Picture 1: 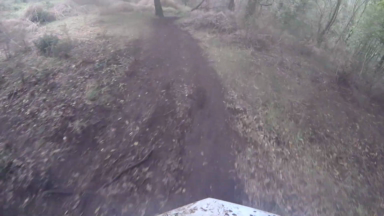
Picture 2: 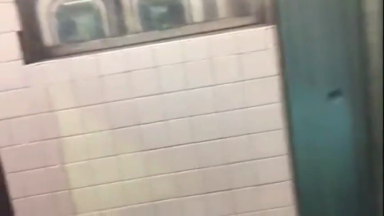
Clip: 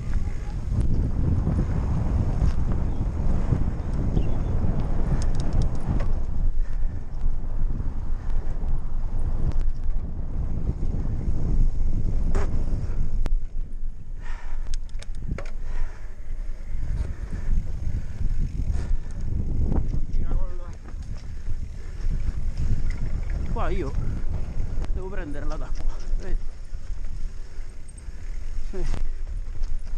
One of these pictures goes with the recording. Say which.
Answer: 1